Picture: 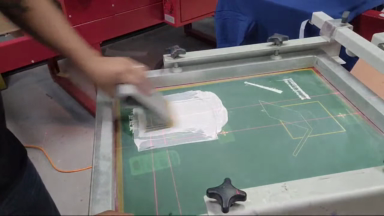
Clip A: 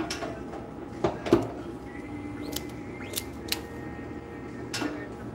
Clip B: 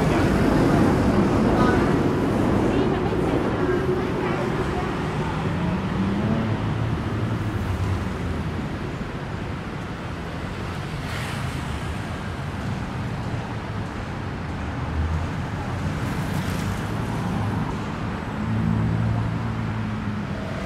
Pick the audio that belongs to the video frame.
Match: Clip A